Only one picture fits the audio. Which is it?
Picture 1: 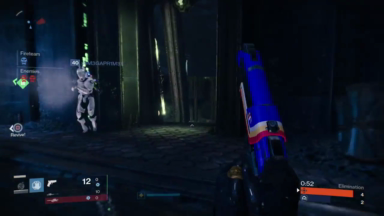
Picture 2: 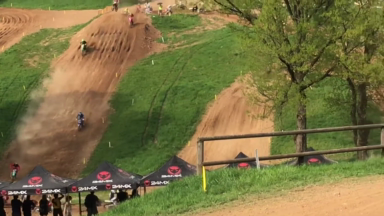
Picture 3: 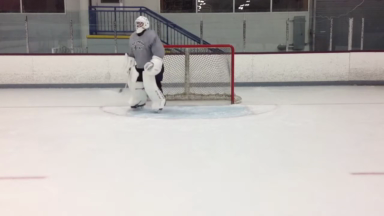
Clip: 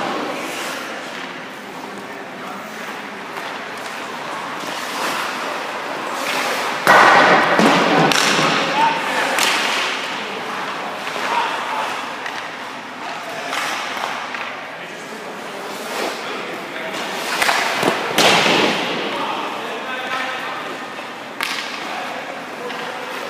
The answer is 3